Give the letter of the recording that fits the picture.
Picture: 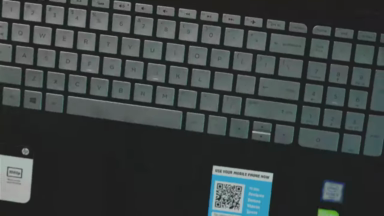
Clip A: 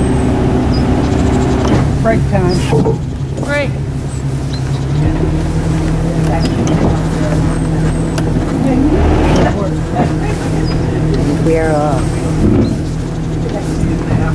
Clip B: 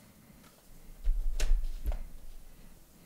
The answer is B